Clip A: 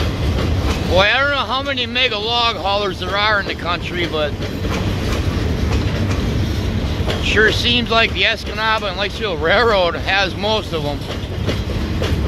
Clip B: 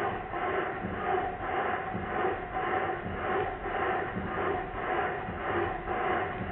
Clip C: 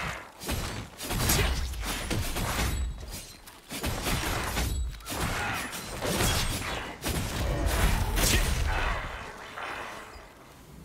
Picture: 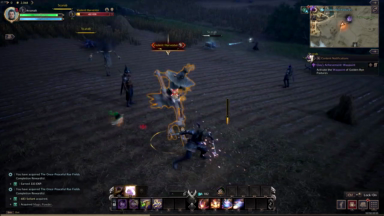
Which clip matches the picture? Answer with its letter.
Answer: C